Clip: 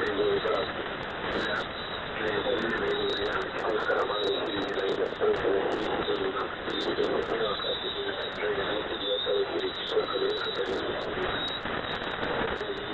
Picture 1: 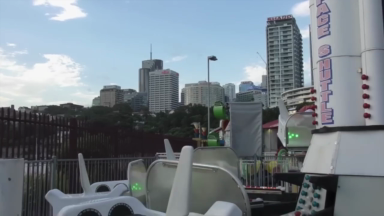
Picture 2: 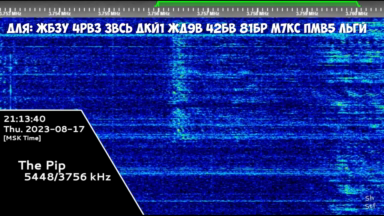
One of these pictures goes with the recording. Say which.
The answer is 2